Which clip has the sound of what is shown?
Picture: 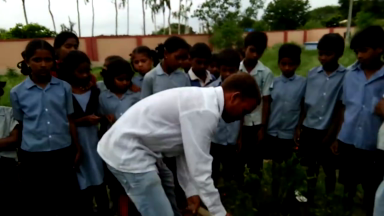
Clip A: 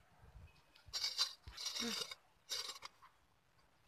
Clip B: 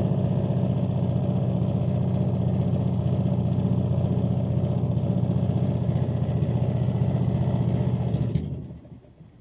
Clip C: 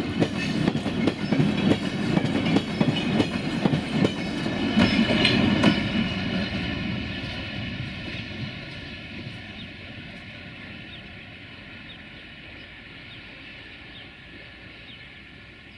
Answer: A